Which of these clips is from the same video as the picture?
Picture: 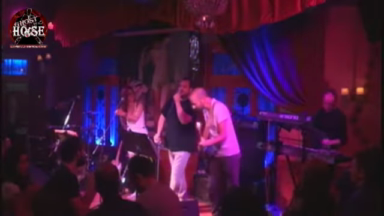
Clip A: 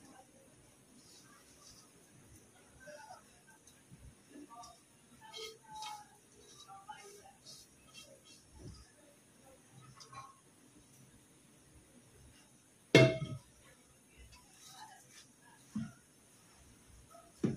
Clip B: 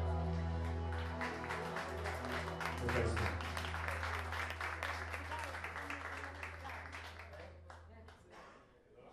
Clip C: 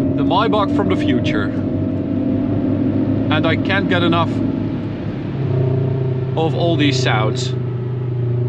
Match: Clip B